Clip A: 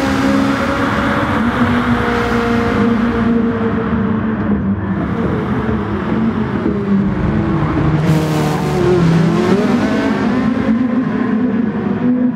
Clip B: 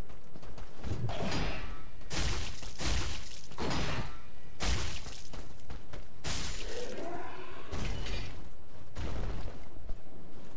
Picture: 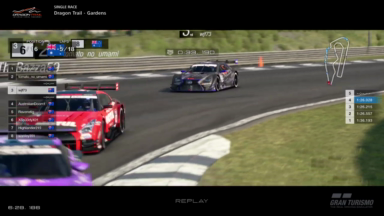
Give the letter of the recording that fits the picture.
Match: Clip A